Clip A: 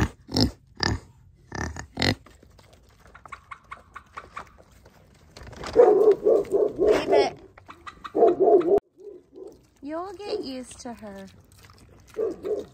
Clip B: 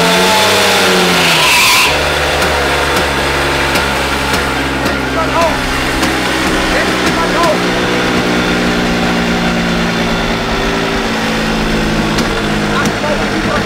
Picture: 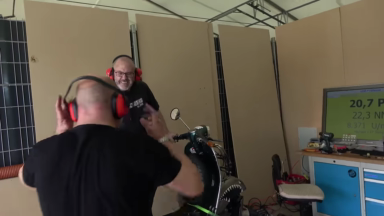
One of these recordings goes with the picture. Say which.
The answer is B